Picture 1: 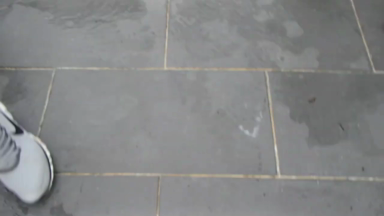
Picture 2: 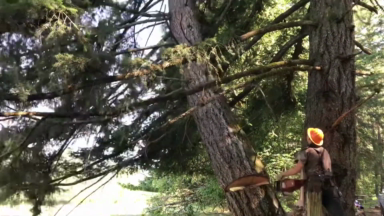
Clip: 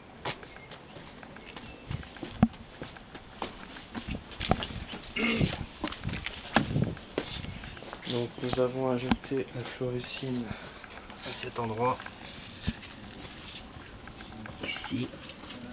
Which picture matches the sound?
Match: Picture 1